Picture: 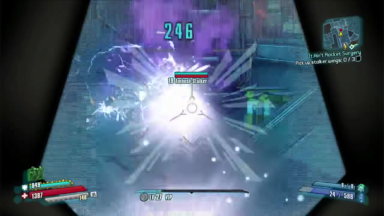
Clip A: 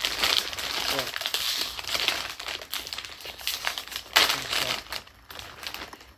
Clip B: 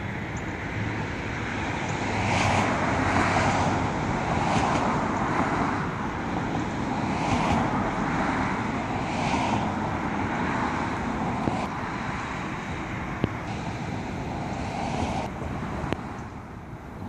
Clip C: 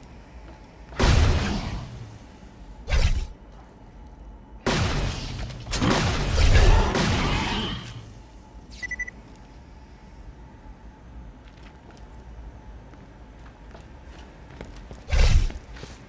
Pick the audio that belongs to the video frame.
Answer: C